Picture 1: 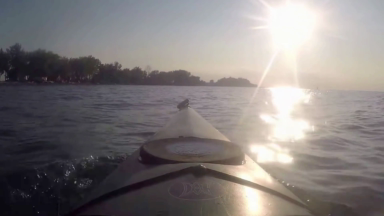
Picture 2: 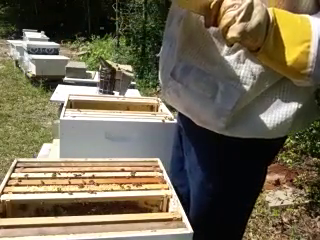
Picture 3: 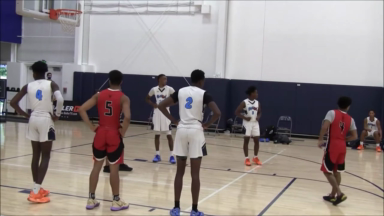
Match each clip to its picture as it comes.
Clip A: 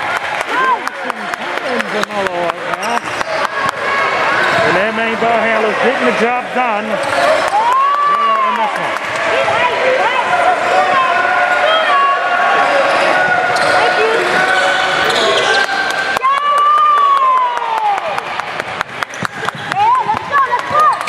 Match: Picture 3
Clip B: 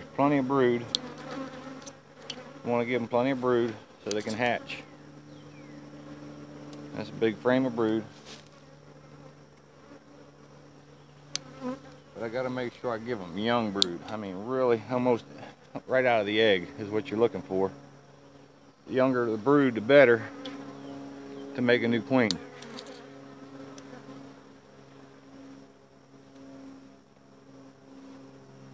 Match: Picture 2